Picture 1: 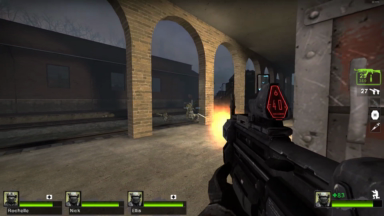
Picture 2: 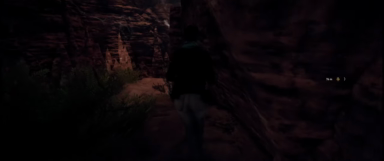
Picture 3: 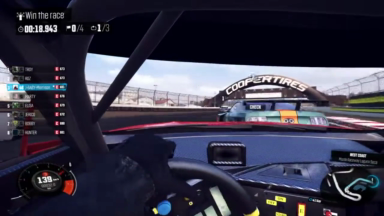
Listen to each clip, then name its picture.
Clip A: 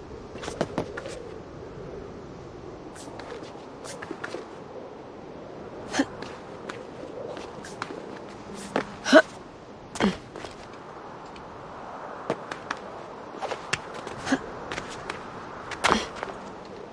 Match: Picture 2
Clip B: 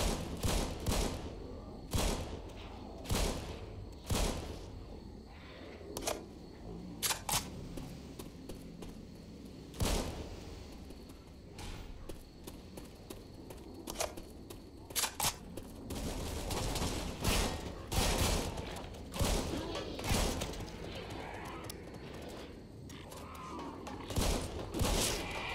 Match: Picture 1